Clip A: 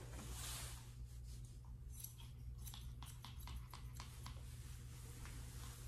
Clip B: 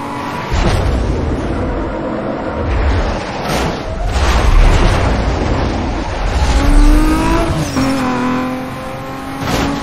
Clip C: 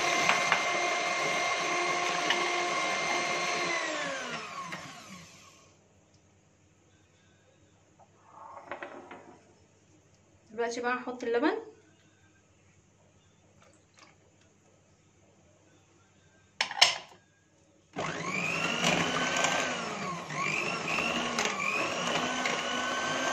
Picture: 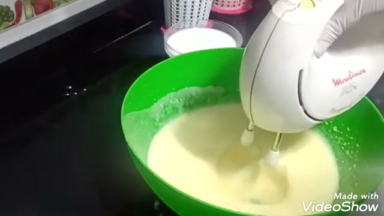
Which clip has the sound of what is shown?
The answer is C